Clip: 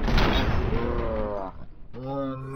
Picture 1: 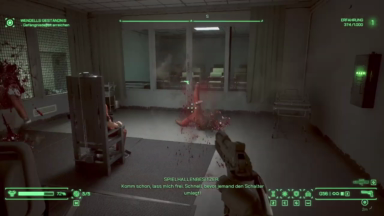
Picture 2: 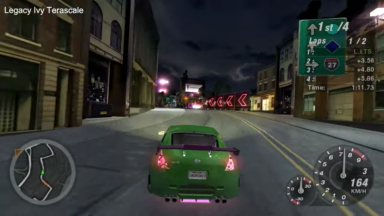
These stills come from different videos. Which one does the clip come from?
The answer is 1